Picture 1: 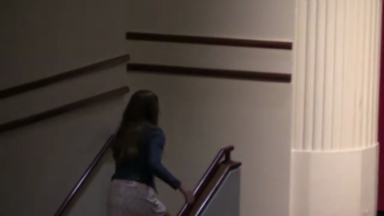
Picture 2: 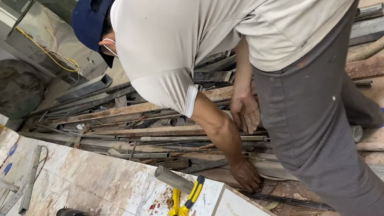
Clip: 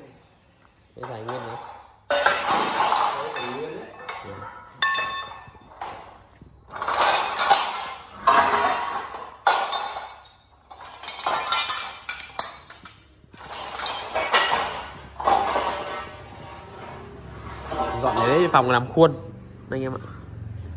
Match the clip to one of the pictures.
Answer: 2